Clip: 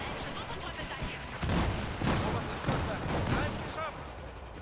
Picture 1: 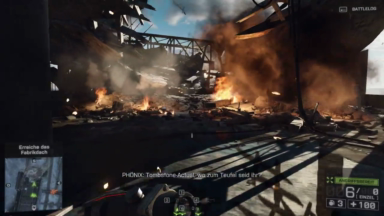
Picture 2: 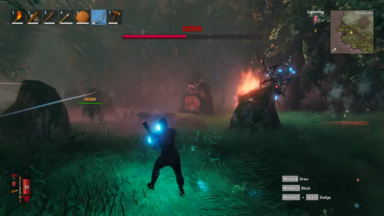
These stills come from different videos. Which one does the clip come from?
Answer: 1